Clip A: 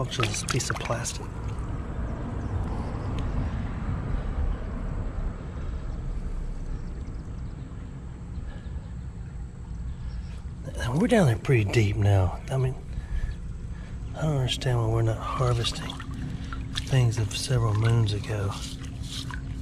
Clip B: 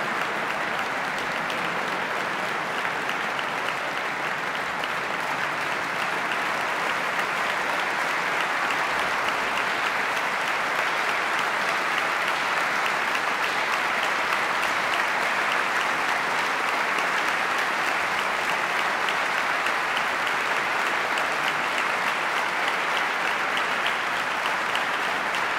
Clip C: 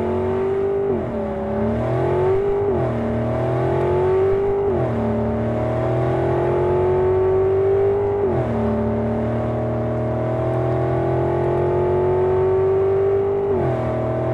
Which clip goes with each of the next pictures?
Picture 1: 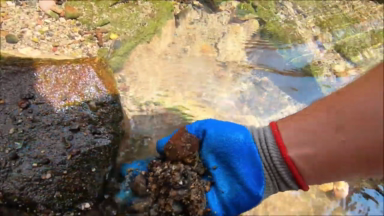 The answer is A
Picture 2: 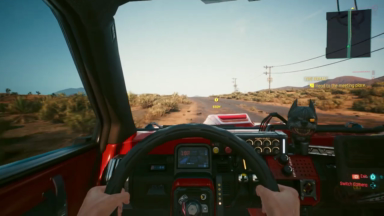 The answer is C